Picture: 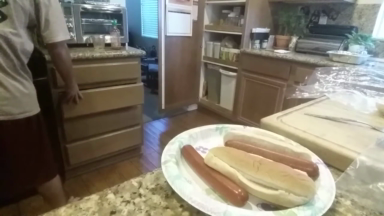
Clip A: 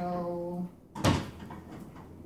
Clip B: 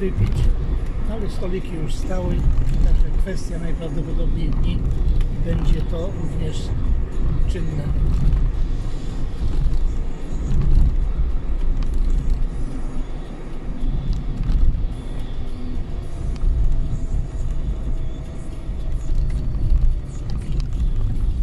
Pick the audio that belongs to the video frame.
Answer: A